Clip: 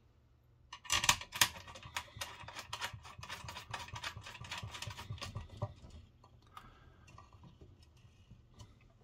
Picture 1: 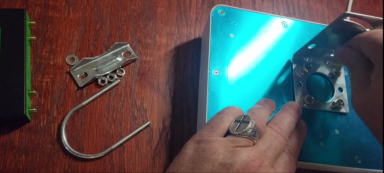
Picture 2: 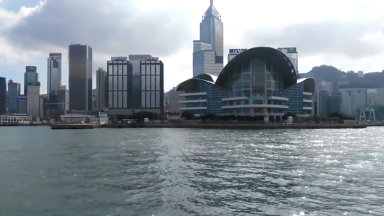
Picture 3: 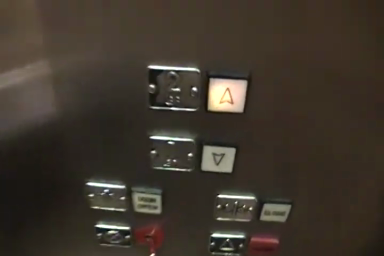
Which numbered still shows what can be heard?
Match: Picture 1